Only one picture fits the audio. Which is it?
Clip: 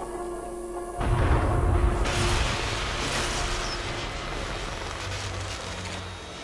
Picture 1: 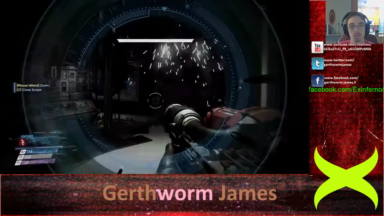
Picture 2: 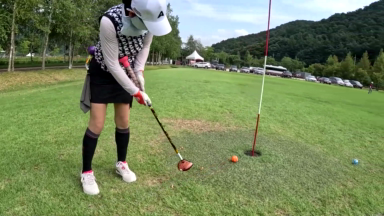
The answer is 1